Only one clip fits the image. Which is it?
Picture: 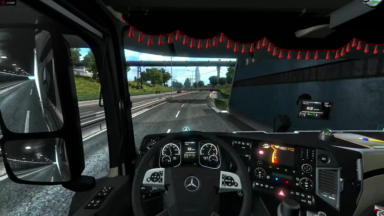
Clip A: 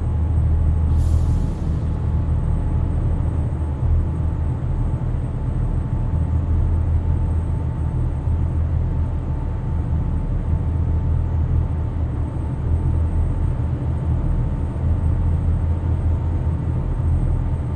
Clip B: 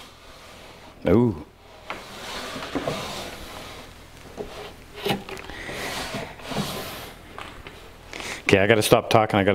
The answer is A